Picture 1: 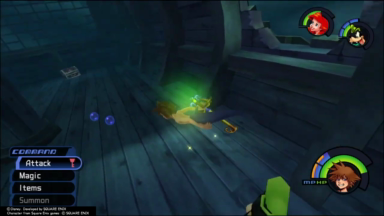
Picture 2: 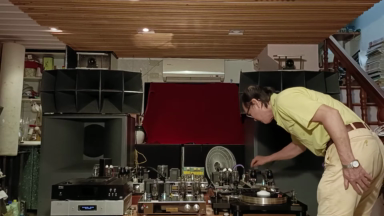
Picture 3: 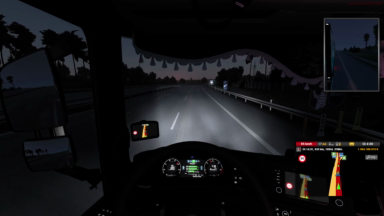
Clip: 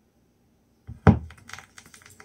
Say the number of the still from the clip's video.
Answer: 2